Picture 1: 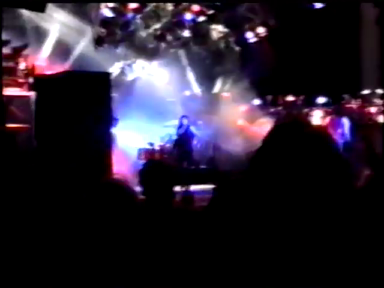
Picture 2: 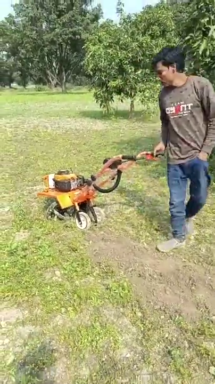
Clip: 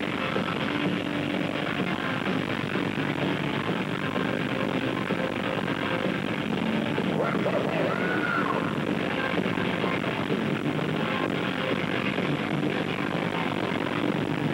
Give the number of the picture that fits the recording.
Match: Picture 1